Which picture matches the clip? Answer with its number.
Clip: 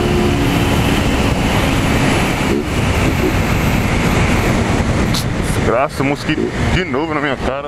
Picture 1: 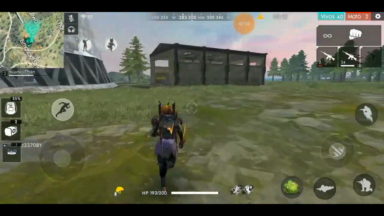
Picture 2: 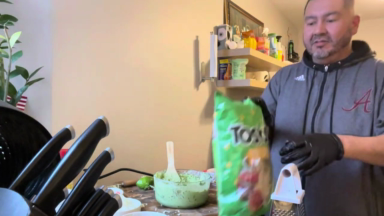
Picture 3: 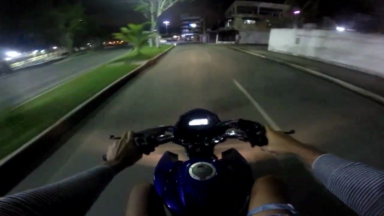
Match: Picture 3